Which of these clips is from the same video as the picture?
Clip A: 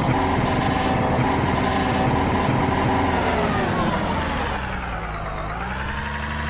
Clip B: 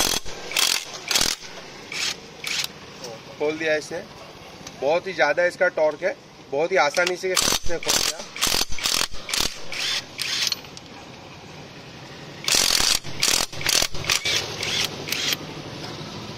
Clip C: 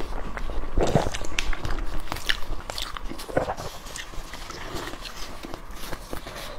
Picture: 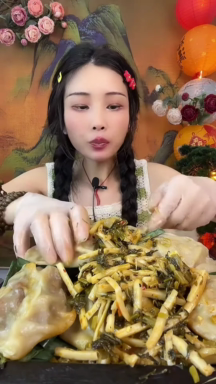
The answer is C